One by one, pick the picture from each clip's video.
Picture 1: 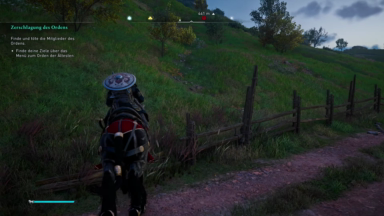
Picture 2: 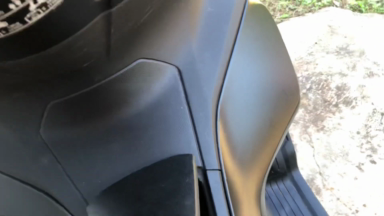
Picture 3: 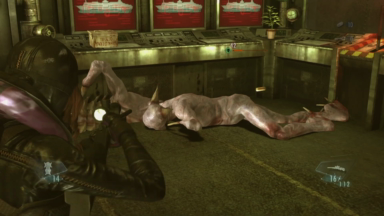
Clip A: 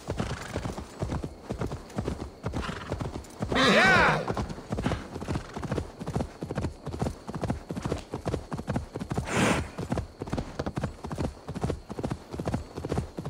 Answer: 1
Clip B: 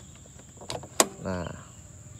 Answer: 2